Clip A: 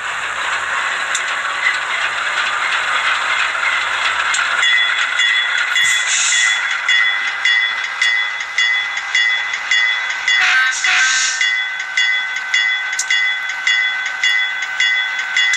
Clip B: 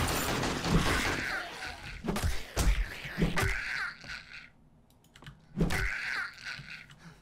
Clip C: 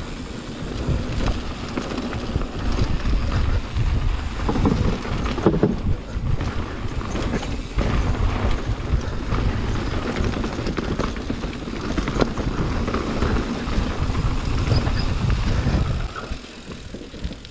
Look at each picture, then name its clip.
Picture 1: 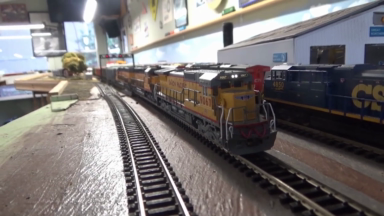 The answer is A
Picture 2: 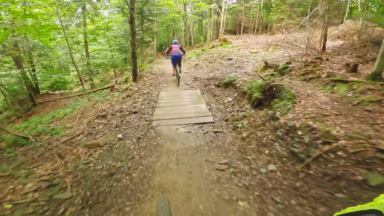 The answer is C